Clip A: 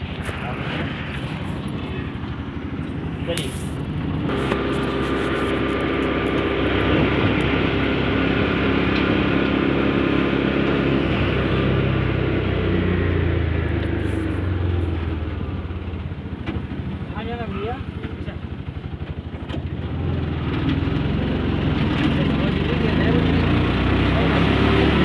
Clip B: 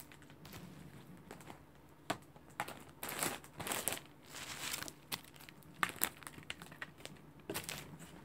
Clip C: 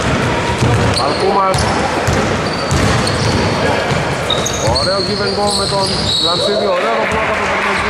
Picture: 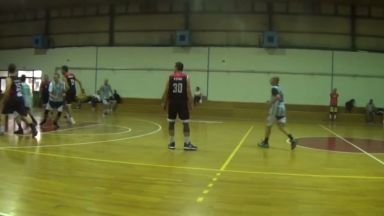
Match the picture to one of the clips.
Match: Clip C